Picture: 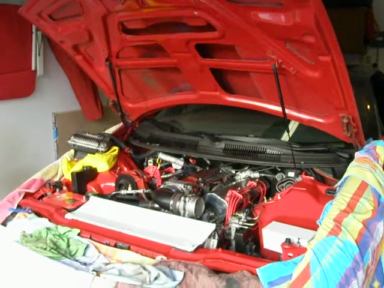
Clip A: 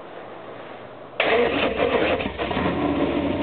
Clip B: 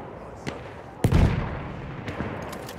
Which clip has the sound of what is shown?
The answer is A